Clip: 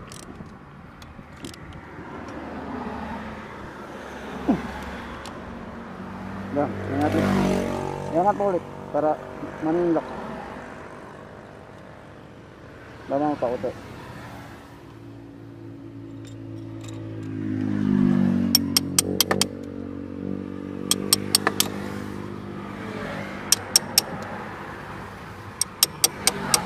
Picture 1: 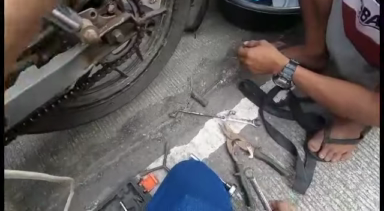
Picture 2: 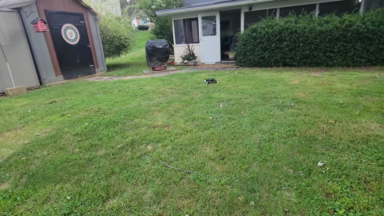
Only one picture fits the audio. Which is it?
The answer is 1